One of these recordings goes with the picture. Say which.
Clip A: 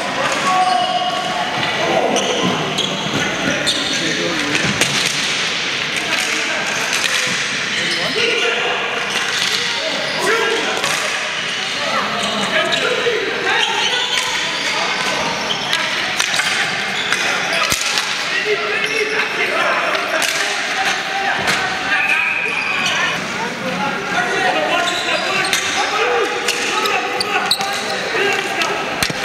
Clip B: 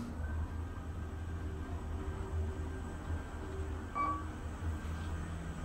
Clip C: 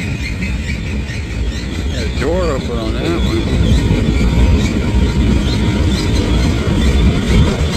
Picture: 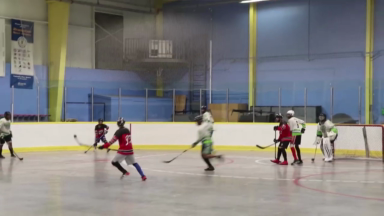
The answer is A